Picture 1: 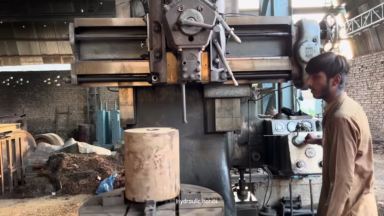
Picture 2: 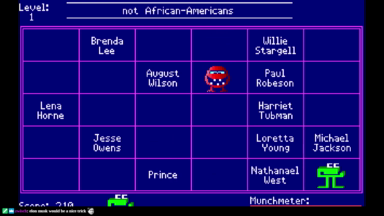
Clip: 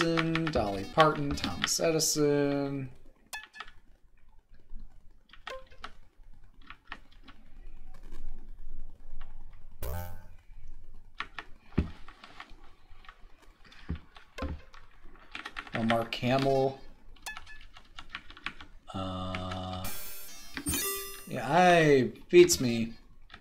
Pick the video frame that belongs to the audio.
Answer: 2